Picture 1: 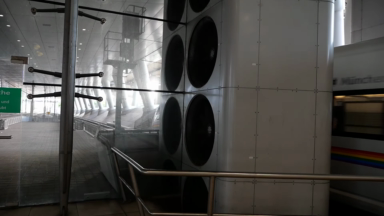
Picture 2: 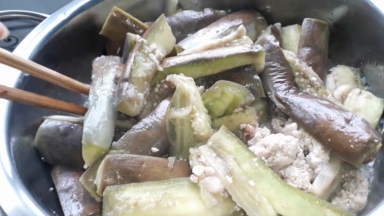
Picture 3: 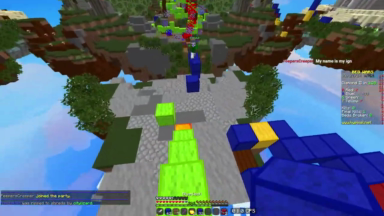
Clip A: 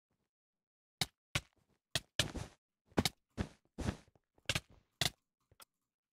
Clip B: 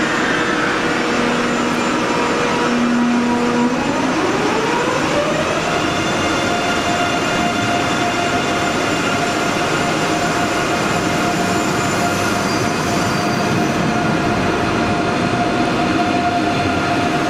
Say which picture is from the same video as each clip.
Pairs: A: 3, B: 1